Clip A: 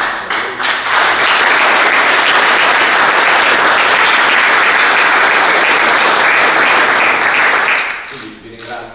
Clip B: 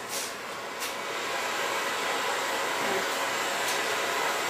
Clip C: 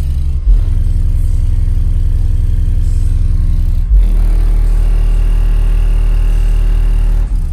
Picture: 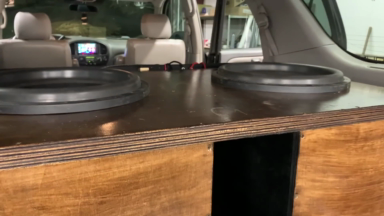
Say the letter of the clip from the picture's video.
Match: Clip C